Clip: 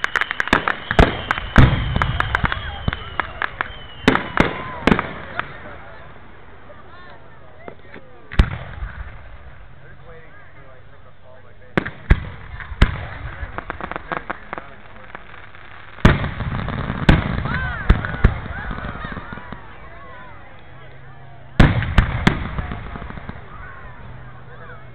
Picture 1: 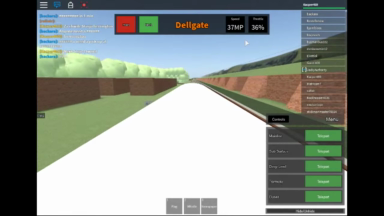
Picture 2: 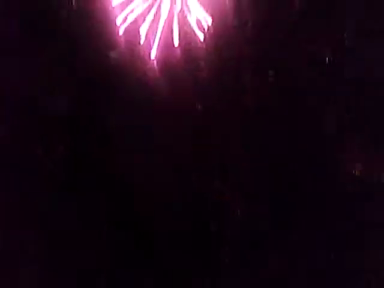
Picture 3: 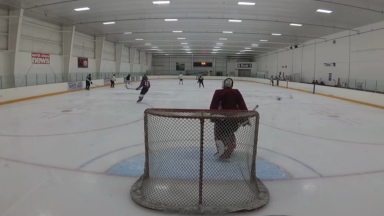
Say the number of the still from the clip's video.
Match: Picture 2